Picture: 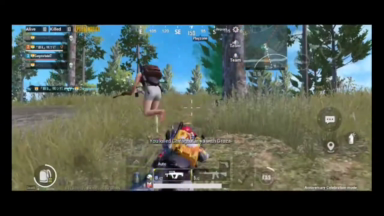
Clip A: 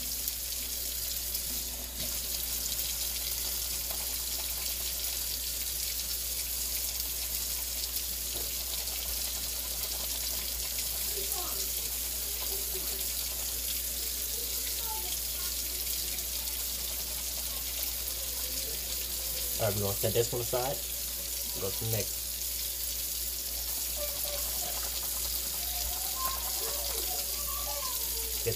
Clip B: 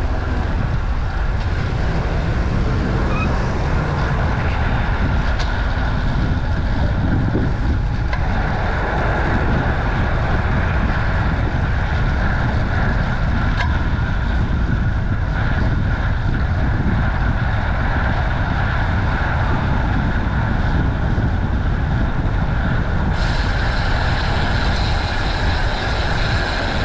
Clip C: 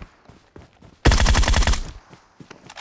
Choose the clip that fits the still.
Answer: C